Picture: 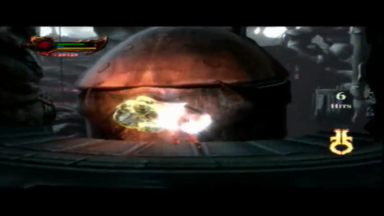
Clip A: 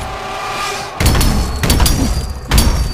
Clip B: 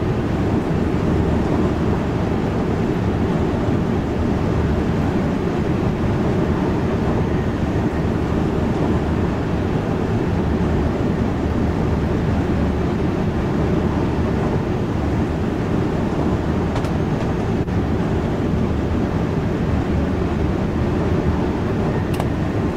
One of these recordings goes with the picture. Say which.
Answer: A